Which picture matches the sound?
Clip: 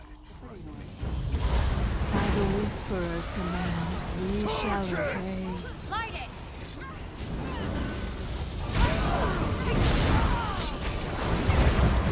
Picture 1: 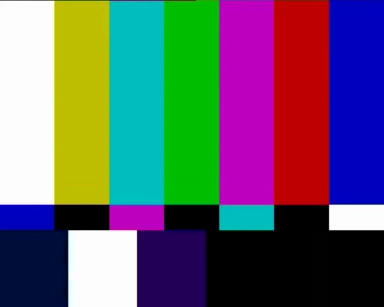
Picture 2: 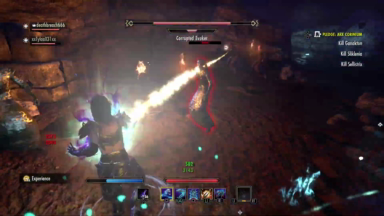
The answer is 2